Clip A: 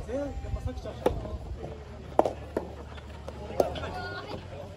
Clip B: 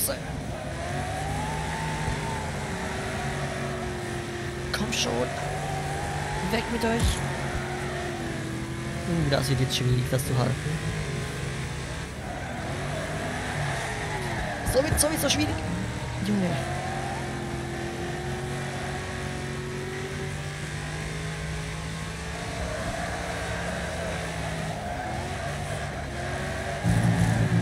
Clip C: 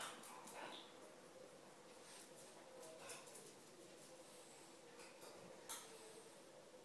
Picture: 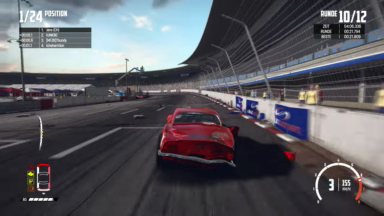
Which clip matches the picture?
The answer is B